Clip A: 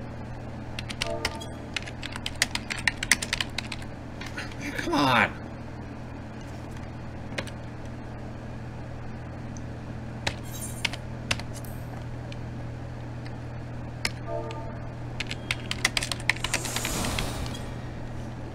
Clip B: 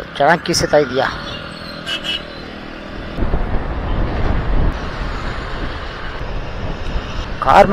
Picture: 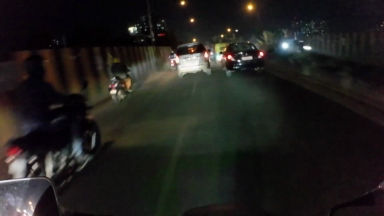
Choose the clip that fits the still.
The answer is B